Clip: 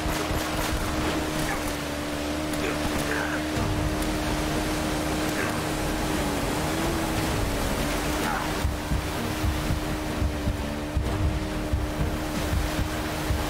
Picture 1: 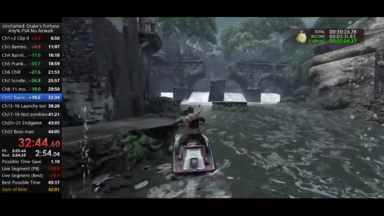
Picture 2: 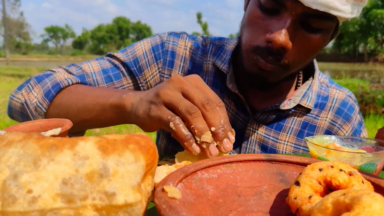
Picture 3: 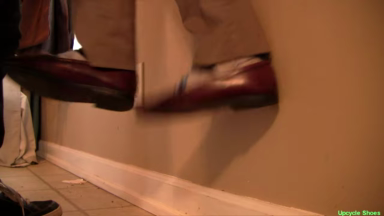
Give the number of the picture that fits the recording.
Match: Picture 1